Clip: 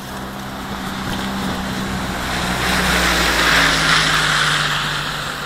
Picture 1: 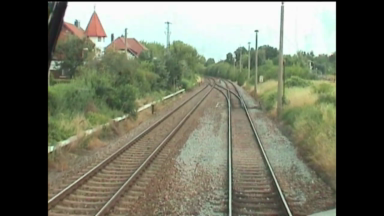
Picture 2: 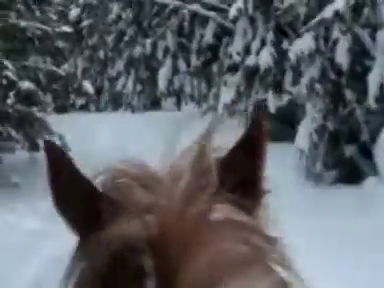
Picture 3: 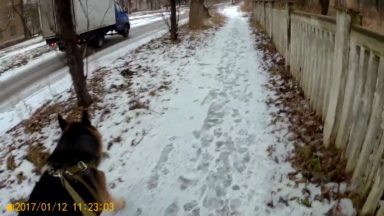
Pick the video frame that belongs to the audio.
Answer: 3